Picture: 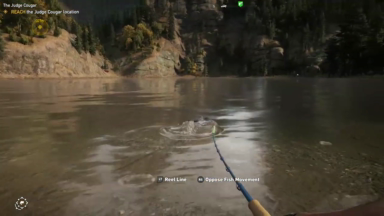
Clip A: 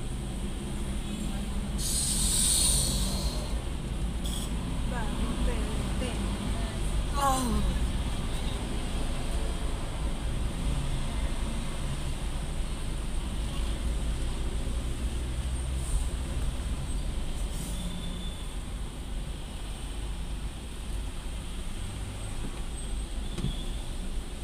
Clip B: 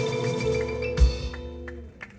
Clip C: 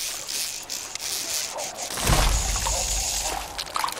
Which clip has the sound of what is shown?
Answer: C